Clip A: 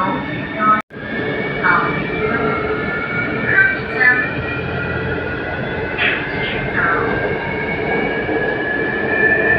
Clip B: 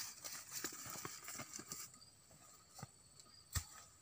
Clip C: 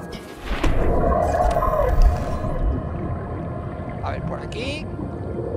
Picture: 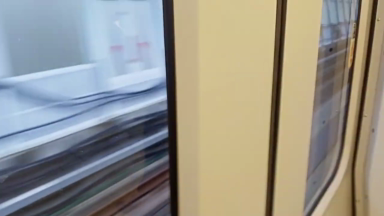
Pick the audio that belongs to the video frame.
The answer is A